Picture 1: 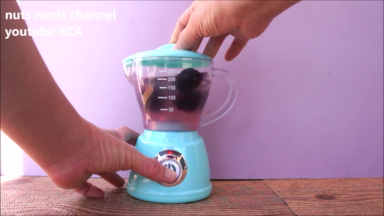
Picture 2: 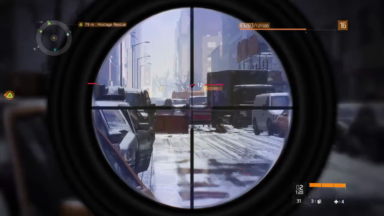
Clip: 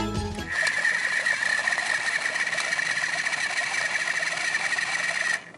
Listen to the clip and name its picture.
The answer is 1